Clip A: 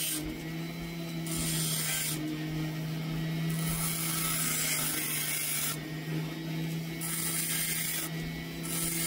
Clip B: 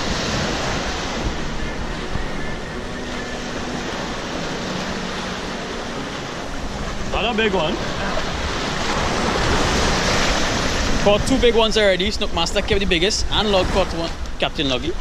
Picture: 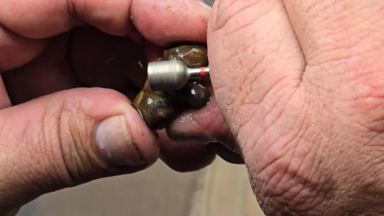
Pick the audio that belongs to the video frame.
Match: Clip A